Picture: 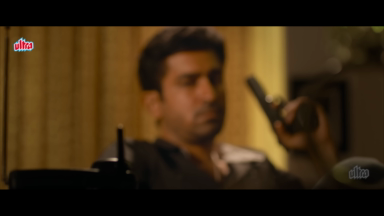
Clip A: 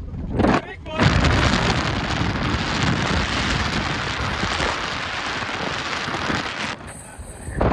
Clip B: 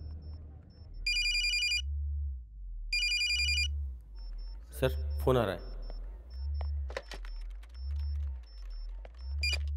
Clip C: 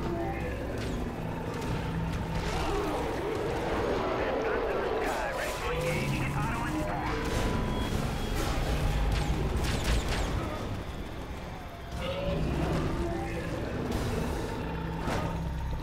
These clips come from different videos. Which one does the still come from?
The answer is B